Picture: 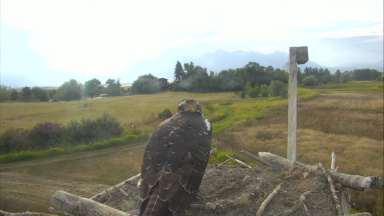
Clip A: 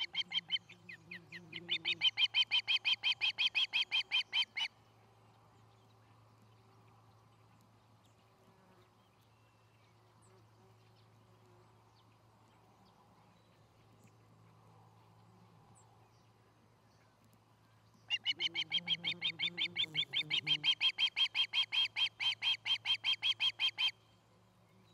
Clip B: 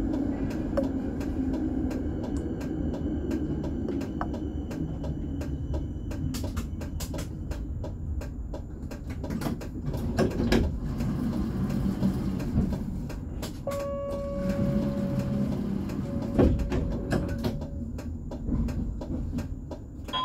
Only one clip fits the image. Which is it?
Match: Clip A